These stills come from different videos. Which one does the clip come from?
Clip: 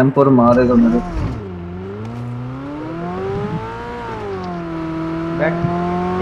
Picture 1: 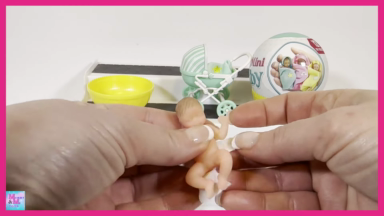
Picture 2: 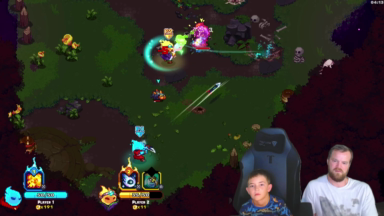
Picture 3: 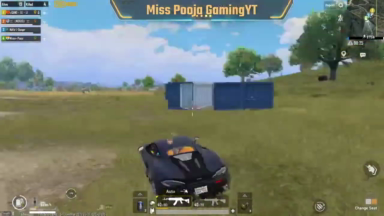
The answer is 3